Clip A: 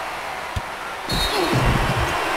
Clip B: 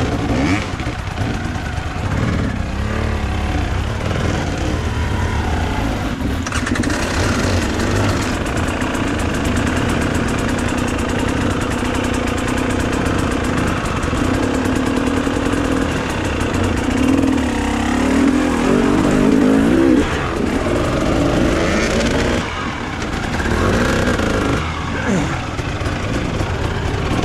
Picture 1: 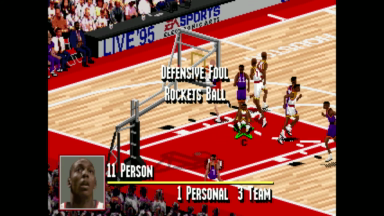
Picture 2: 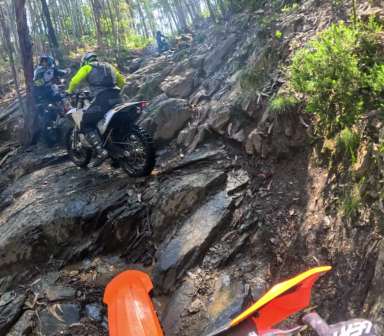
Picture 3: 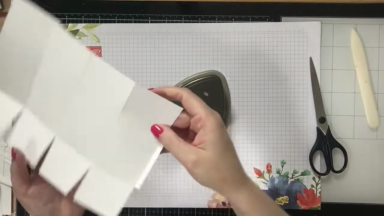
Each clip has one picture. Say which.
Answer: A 1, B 2